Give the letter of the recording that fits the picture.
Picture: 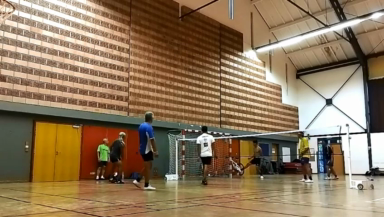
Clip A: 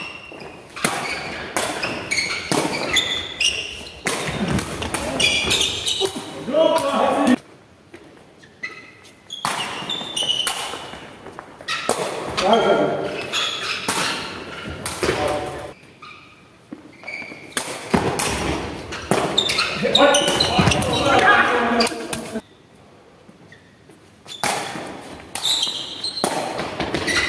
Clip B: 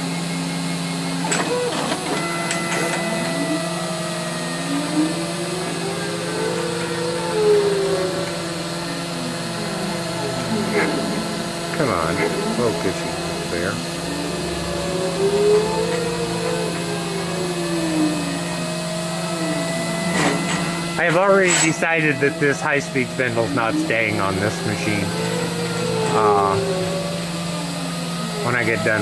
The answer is A